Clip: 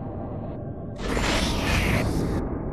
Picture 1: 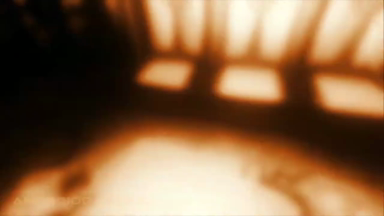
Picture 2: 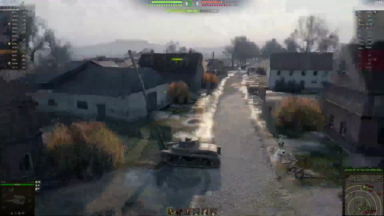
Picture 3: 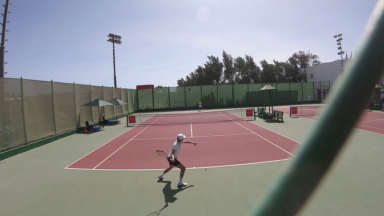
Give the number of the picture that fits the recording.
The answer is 1